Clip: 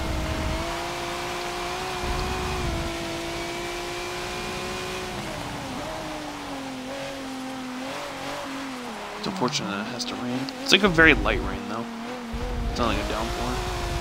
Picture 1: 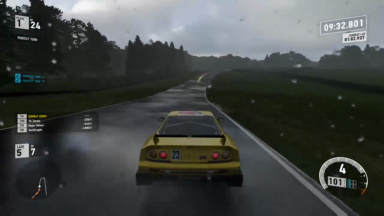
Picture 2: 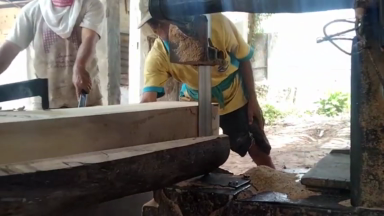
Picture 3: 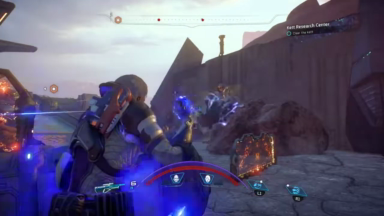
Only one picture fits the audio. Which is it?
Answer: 1